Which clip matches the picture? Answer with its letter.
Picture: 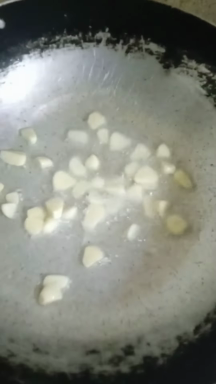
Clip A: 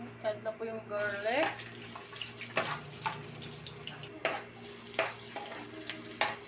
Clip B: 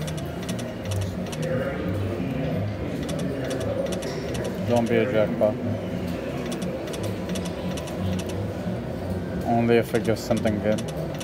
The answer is A